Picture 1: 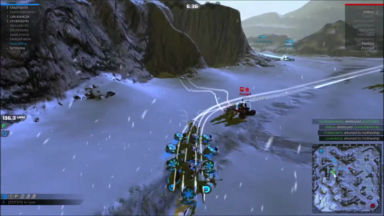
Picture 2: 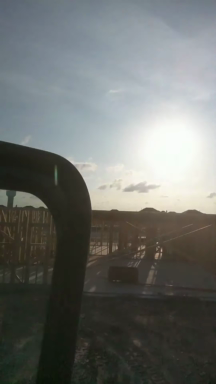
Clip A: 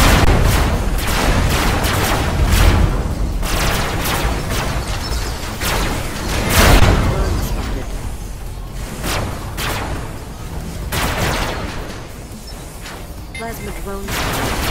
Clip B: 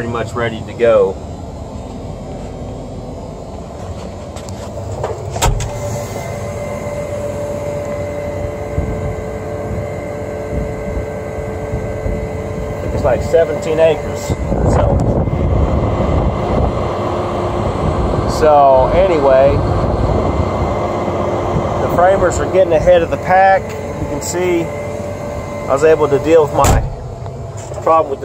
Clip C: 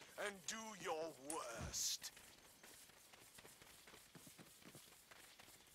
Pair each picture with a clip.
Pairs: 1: A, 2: B